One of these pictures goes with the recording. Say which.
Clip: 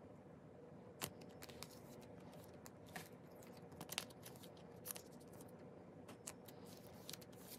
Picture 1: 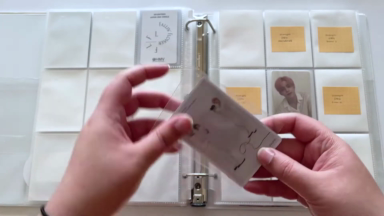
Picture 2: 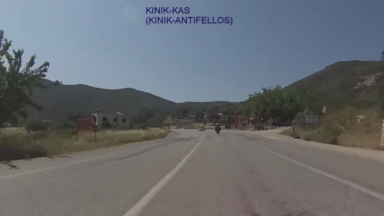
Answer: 1